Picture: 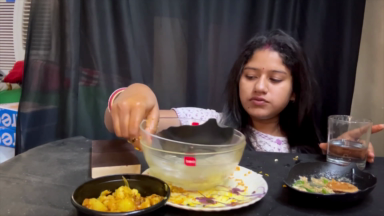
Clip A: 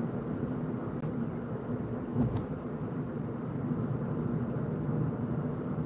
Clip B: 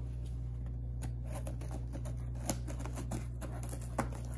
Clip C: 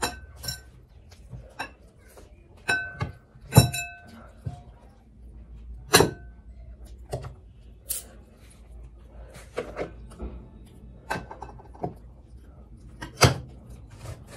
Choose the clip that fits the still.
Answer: C